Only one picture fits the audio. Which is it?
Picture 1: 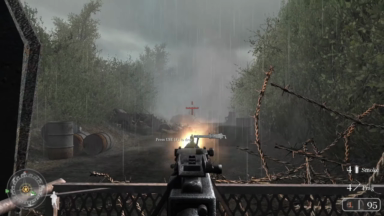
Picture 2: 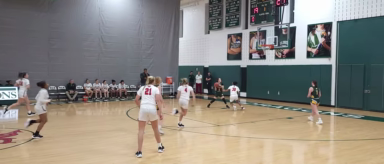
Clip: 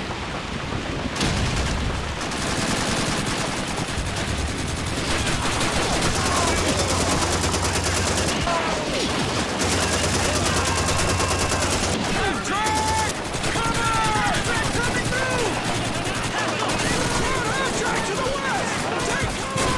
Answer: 1